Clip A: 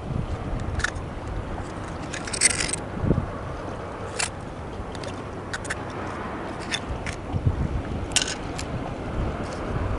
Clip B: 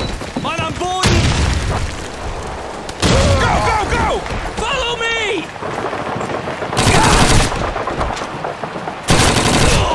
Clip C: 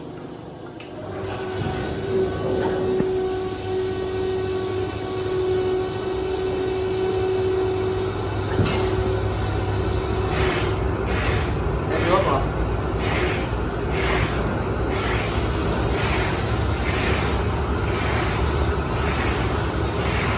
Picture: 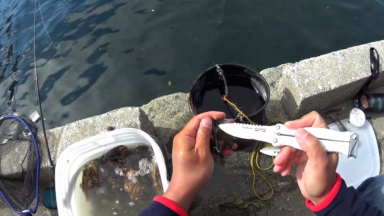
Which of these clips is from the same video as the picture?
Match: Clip A